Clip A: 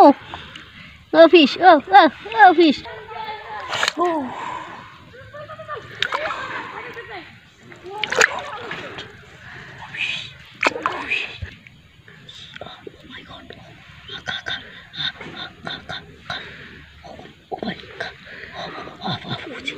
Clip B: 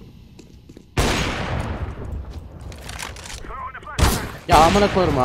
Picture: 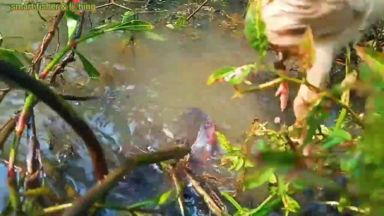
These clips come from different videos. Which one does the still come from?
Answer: A